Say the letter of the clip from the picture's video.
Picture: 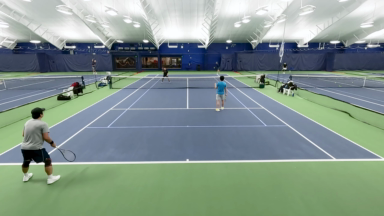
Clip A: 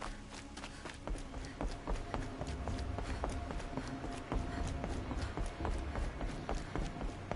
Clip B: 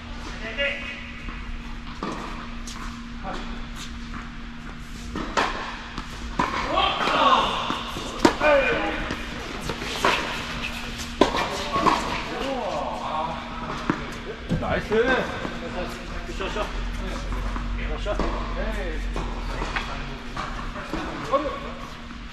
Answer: B